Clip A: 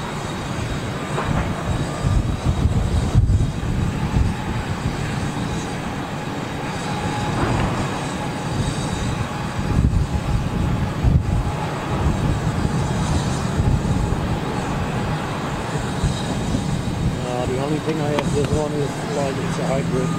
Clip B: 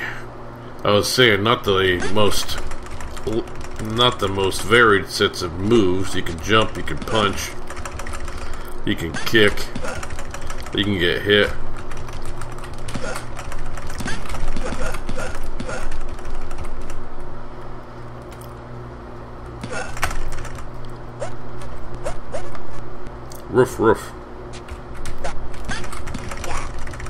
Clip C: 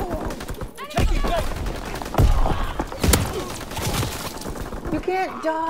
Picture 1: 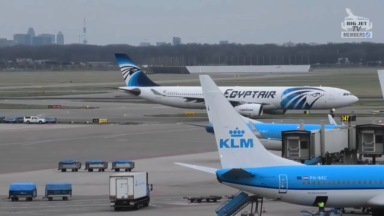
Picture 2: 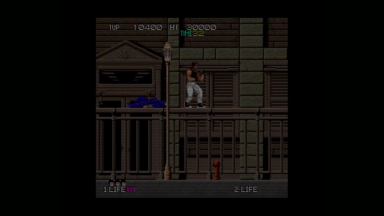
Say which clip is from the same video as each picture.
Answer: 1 A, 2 B